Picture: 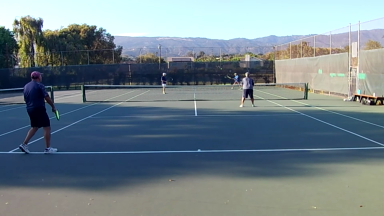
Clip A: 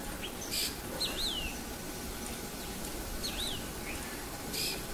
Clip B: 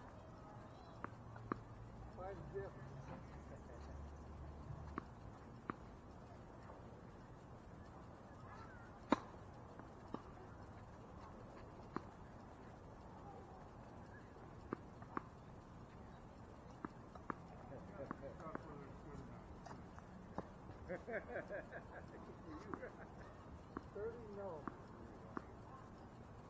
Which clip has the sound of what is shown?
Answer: B